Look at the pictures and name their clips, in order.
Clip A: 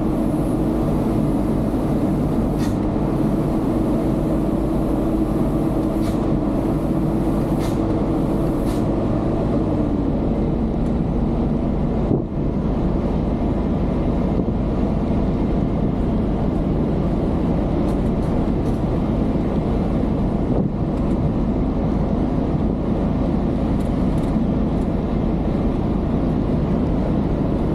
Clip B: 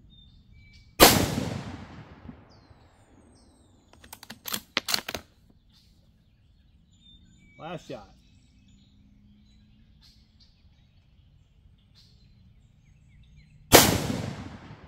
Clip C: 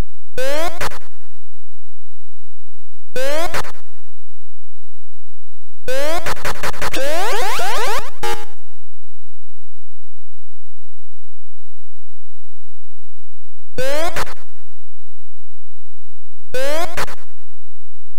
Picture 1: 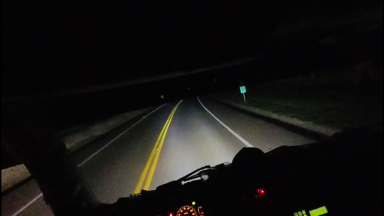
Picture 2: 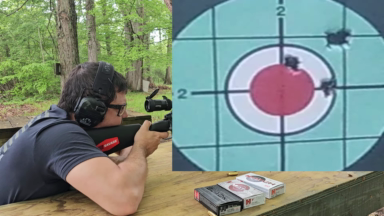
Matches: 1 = A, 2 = B